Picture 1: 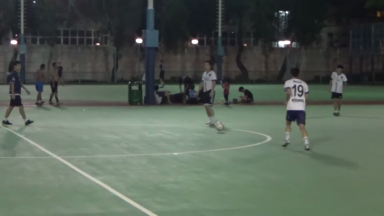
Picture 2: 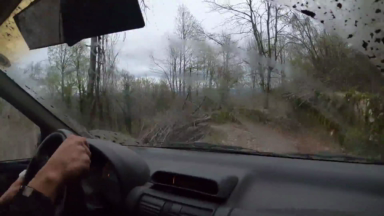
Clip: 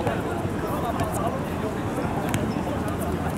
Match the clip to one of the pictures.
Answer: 1